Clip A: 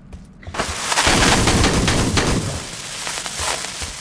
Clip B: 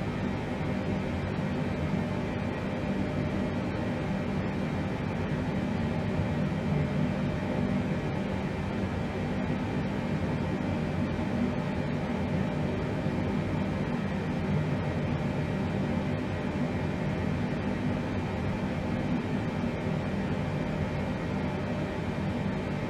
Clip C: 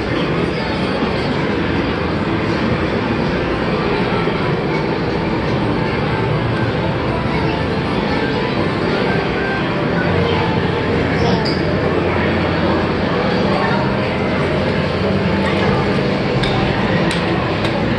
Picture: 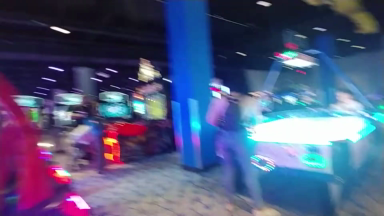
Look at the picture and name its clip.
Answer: C